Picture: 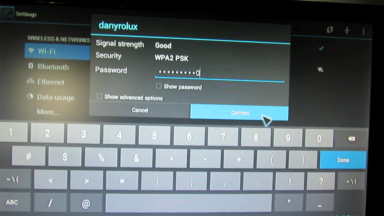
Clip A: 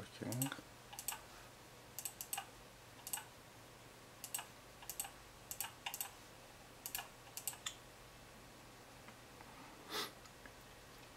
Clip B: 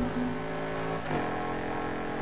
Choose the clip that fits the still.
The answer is A